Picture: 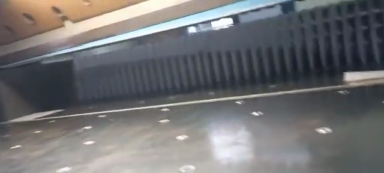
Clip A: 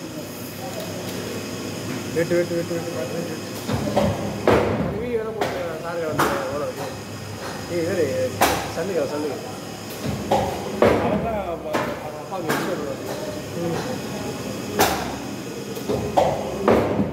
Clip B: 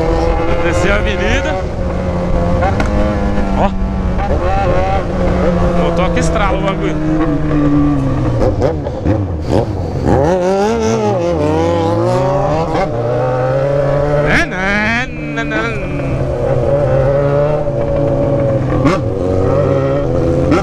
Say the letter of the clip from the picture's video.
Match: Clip A